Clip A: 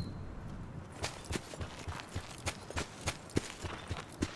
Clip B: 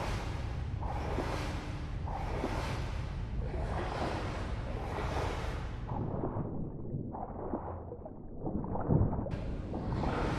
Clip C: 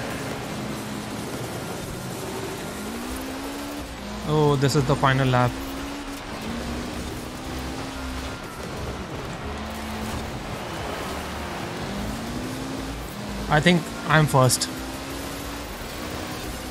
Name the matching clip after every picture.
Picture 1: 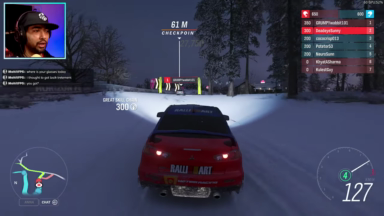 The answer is C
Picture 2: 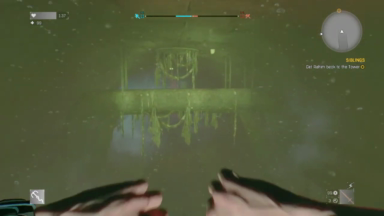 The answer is B